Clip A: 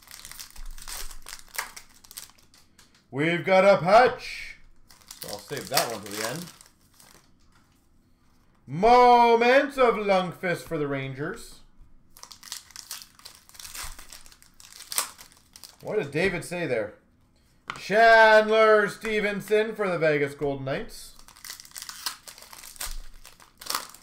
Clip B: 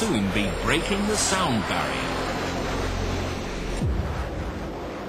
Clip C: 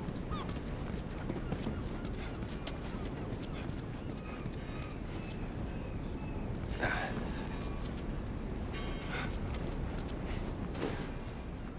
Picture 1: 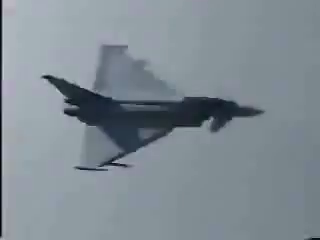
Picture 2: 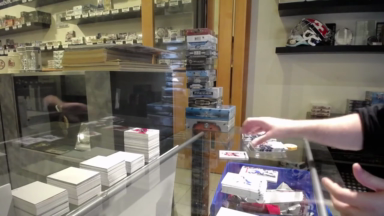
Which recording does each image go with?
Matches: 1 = B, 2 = A